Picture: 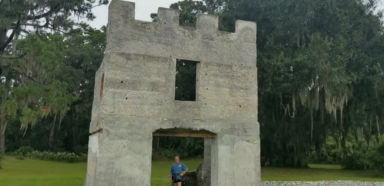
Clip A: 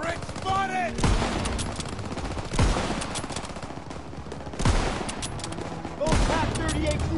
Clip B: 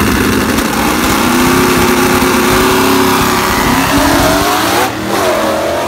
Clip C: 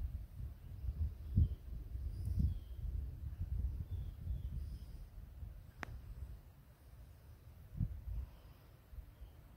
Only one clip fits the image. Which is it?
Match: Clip C